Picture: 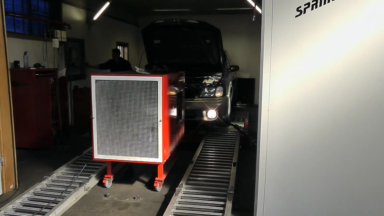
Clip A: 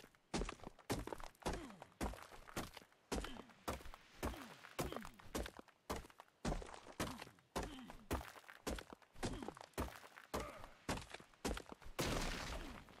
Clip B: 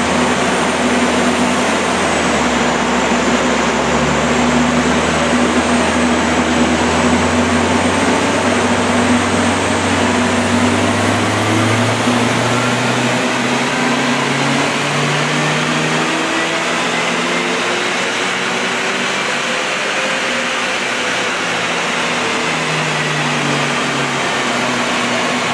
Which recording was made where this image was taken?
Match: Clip B